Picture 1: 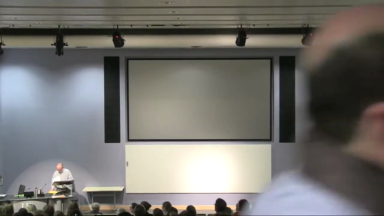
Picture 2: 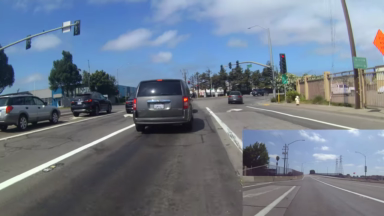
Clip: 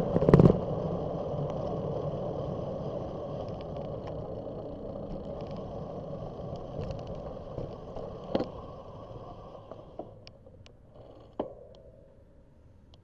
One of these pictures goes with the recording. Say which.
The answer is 2